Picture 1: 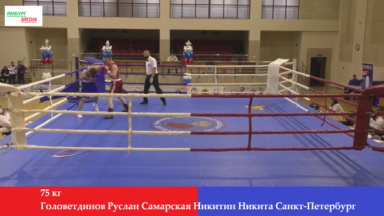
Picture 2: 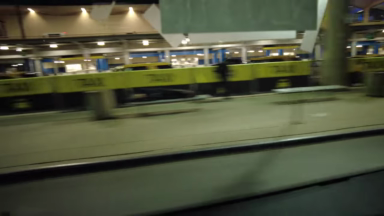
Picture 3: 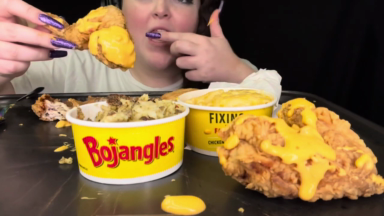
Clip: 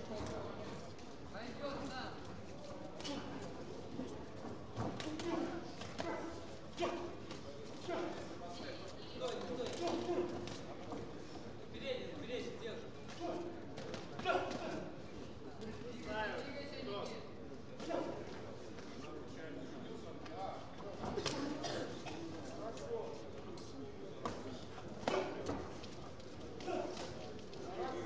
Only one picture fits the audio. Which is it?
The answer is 1